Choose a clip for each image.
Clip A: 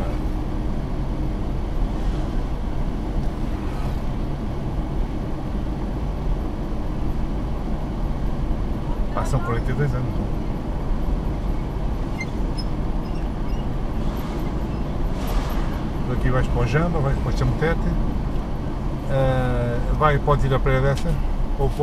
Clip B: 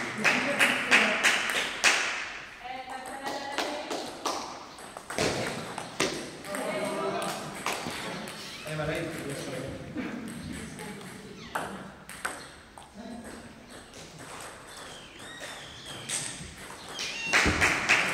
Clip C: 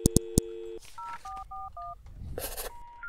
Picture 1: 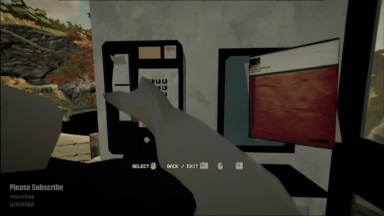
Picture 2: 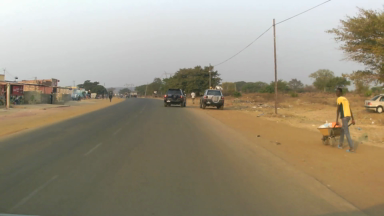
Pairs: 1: C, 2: A